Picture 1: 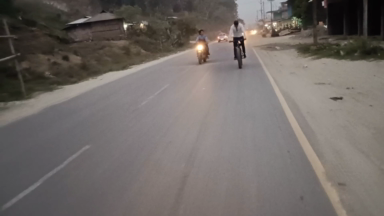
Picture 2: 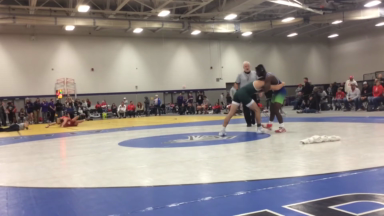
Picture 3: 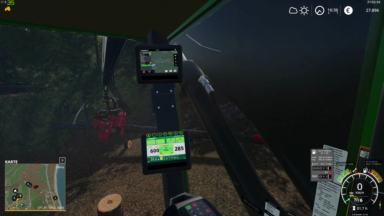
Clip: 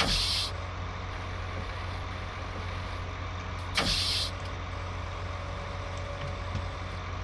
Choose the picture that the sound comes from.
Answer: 3